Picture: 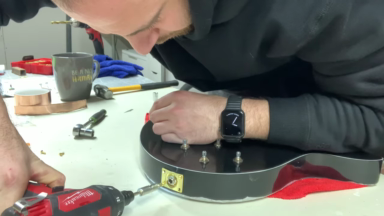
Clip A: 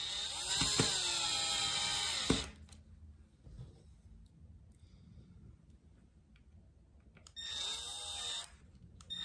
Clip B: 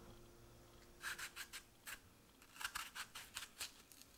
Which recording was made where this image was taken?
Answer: A